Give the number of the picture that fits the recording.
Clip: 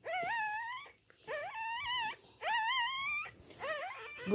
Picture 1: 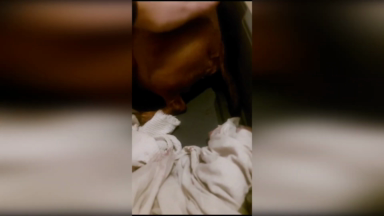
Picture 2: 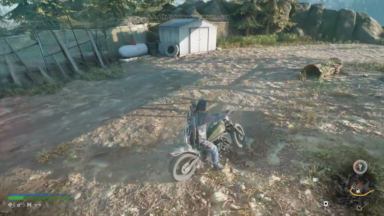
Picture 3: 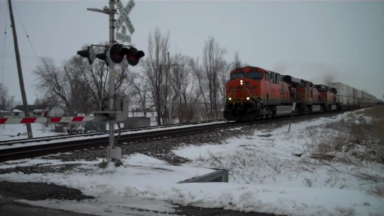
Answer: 1